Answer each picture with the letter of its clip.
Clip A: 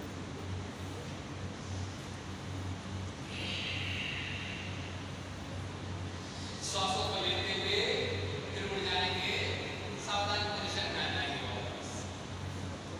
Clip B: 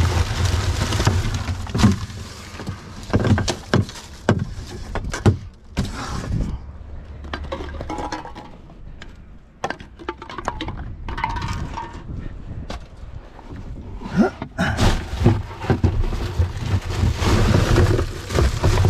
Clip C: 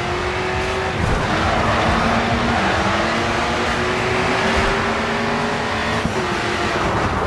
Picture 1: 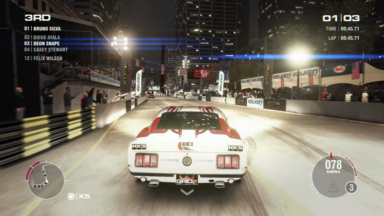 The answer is C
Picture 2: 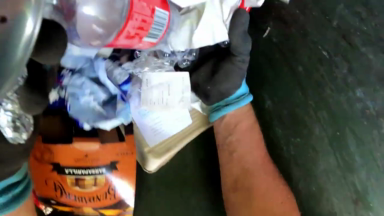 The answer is B